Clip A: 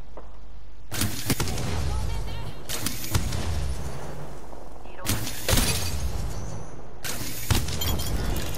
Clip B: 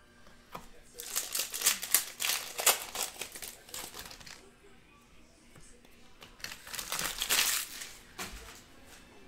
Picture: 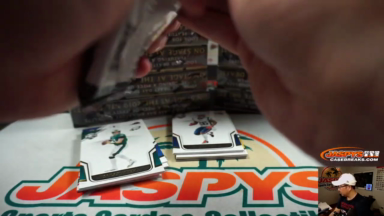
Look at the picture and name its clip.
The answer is B